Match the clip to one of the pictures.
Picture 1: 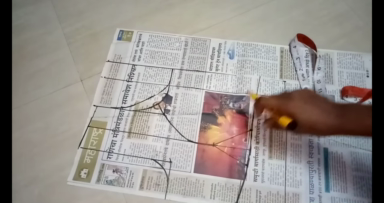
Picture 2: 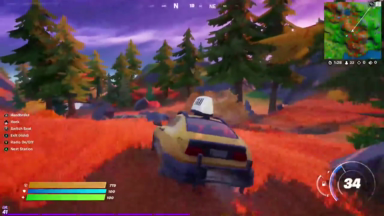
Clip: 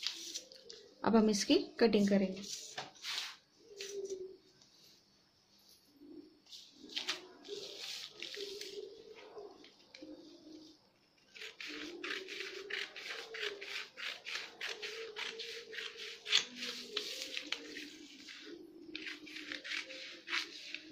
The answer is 1